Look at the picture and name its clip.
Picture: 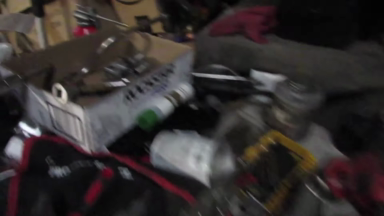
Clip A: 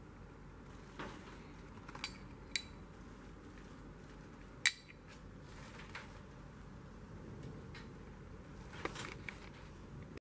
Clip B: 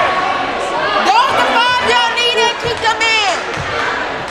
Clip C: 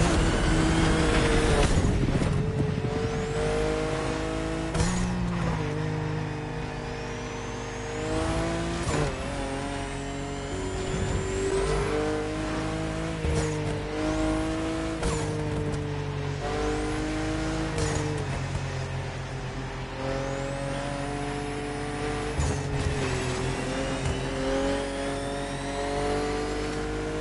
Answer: A